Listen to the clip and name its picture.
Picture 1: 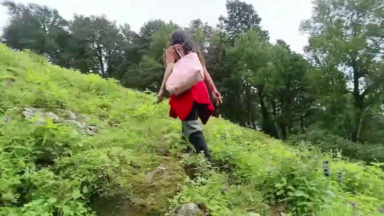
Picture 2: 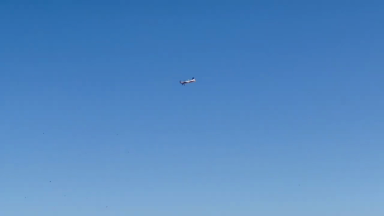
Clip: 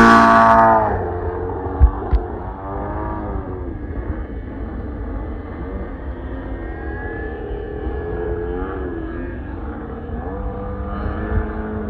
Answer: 2